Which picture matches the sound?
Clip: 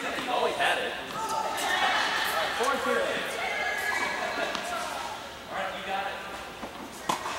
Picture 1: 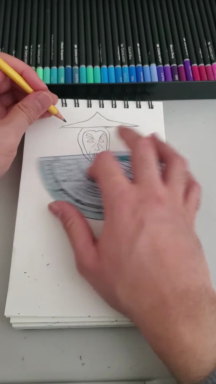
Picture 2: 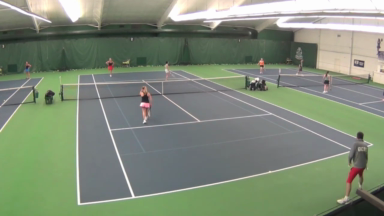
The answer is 2